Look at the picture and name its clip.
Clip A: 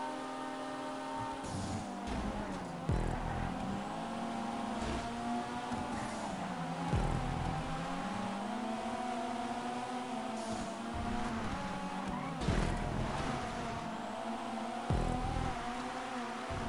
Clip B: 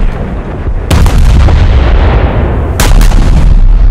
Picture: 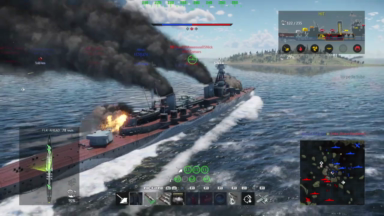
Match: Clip B